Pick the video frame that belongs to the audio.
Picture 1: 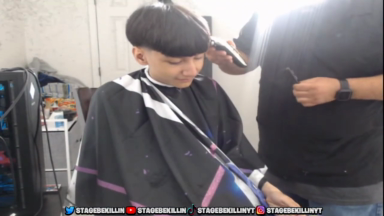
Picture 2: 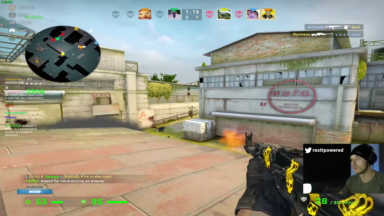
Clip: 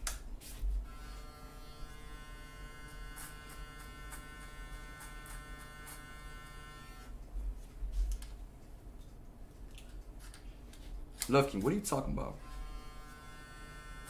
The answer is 1